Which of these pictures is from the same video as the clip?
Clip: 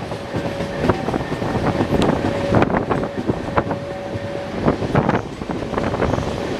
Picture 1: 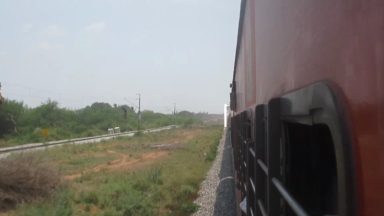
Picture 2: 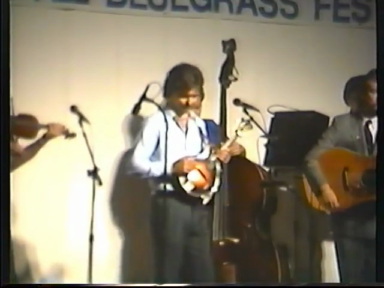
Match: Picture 1